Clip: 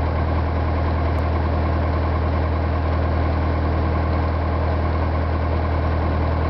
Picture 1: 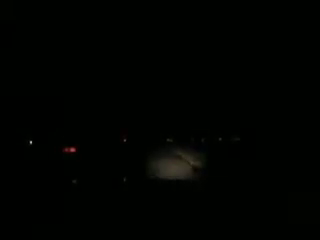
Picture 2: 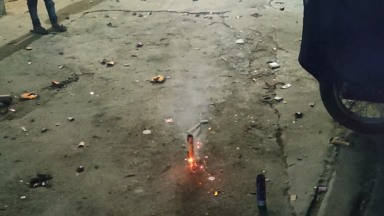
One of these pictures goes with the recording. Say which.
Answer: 1